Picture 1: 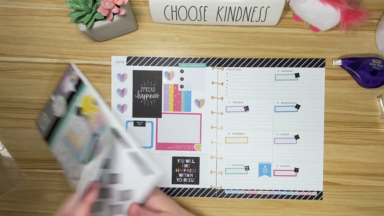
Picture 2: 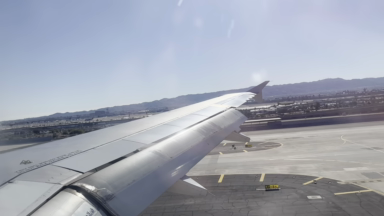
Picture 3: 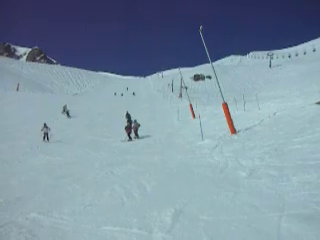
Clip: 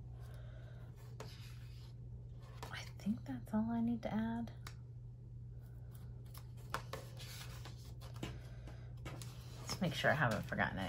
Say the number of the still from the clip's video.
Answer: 1